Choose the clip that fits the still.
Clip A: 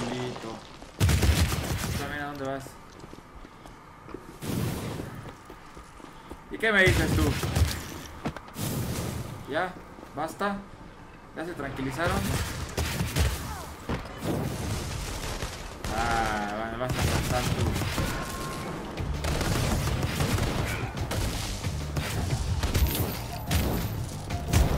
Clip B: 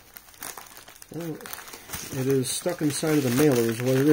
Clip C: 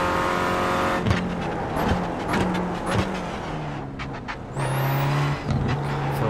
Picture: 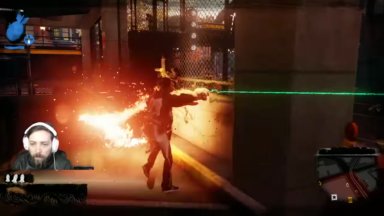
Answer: A